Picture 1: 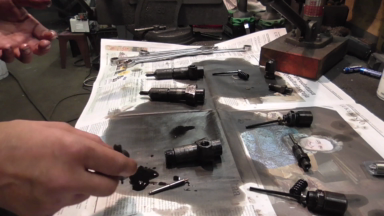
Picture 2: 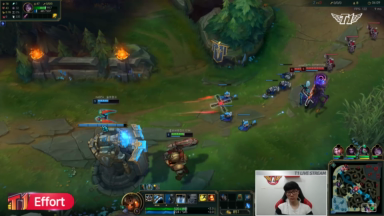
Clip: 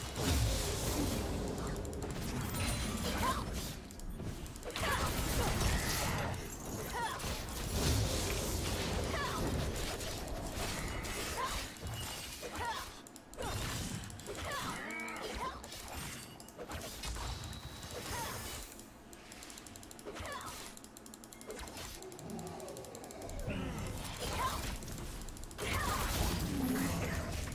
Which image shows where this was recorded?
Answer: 2